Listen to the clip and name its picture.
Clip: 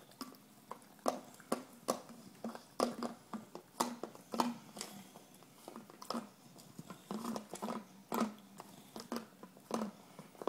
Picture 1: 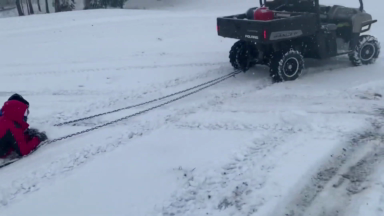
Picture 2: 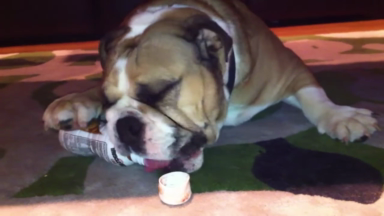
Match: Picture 2